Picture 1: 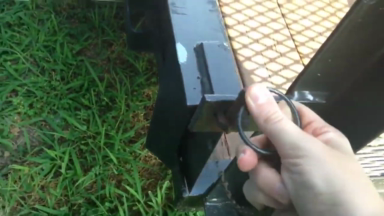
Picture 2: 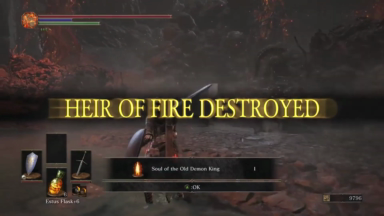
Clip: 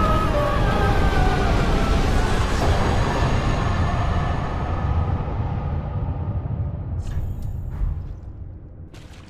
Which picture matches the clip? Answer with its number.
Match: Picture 2